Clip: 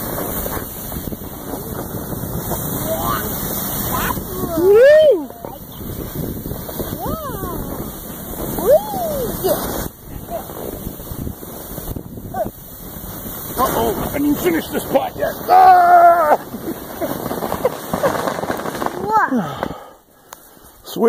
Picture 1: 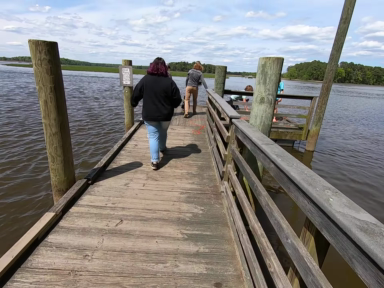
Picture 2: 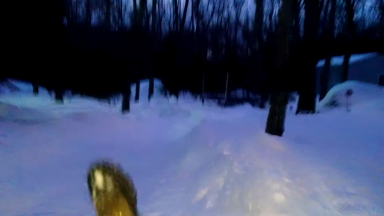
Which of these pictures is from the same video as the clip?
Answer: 2